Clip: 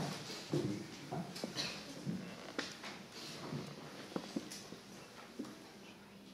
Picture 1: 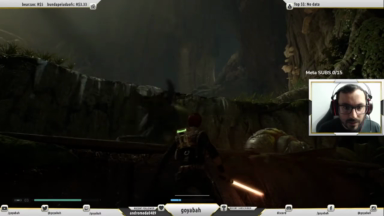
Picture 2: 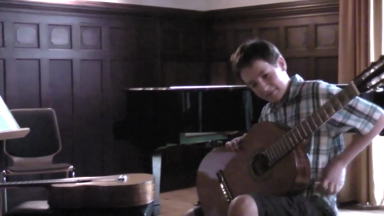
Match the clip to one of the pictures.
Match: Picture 2